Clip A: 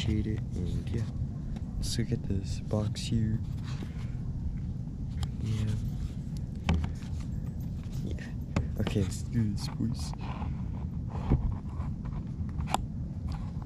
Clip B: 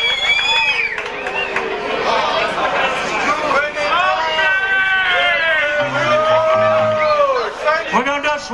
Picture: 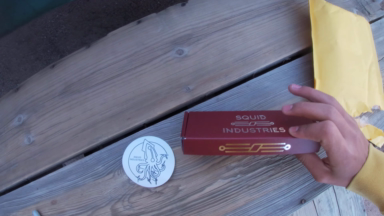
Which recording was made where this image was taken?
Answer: A